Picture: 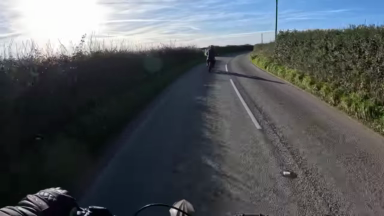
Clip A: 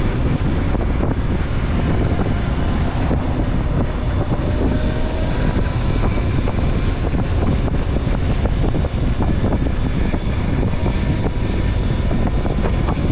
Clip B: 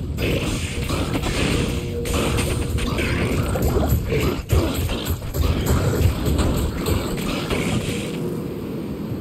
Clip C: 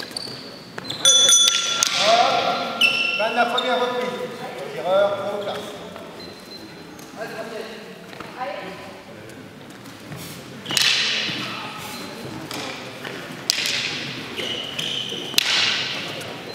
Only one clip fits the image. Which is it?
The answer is A